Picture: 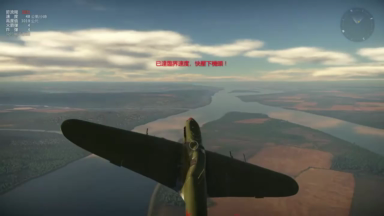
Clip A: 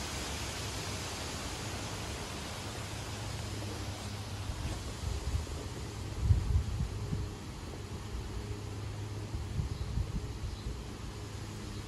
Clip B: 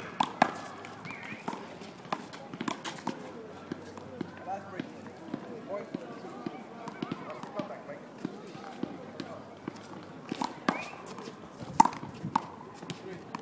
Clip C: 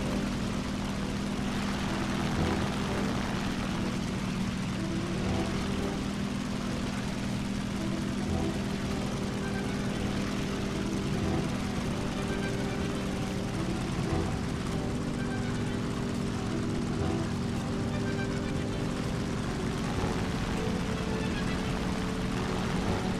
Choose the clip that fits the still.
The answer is C